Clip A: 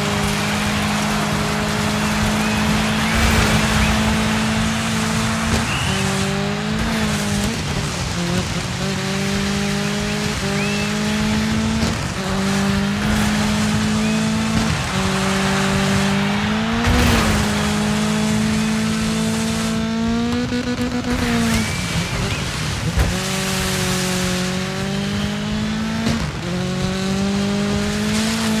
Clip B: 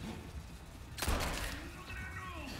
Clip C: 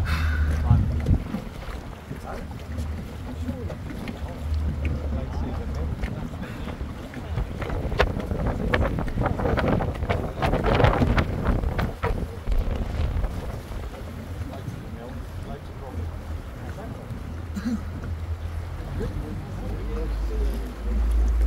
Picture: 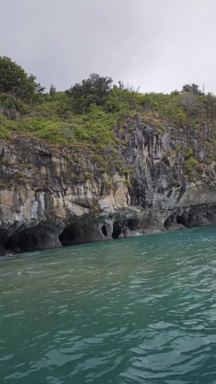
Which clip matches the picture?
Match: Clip C